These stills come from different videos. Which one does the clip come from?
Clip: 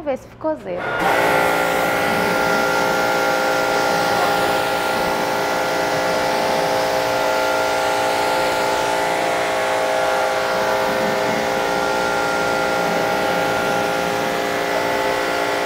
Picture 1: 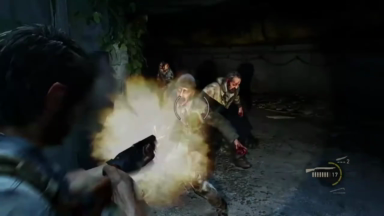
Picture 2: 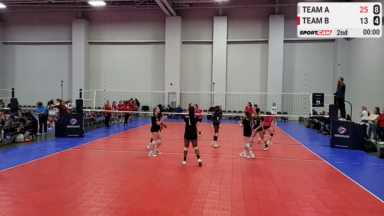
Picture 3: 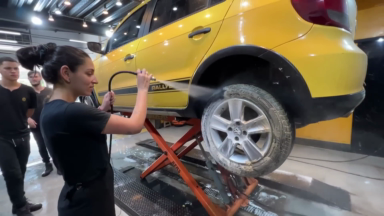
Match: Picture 3